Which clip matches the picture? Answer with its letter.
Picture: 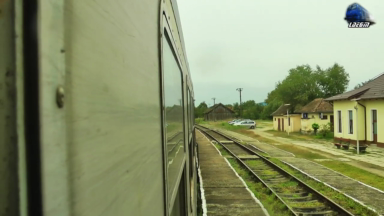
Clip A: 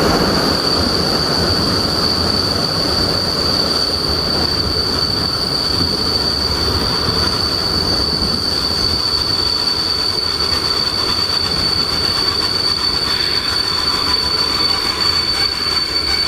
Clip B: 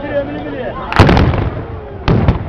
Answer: A